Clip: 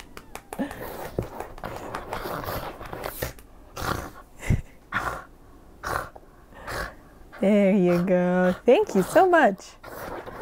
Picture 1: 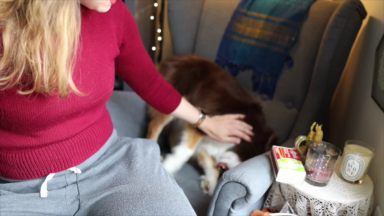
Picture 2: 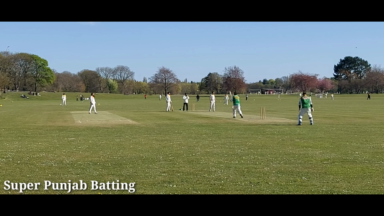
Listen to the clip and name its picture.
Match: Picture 1